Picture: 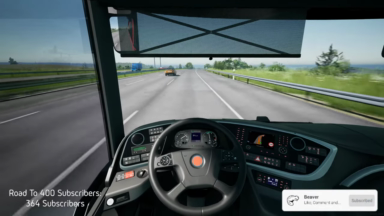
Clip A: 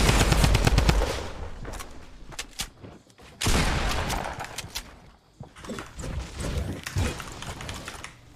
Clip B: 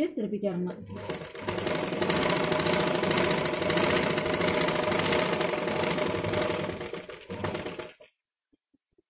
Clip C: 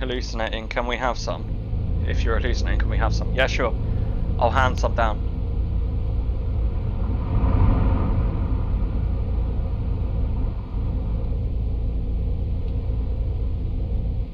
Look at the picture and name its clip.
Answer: C